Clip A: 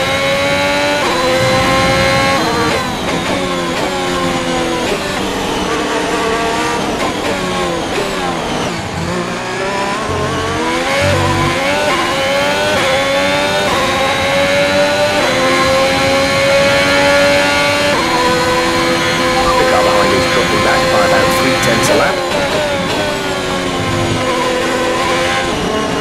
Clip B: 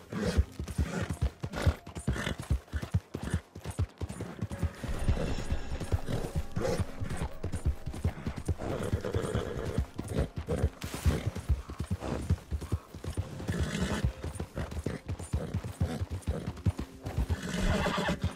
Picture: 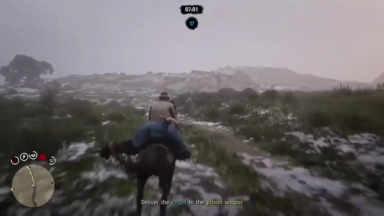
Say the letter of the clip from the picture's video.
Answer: B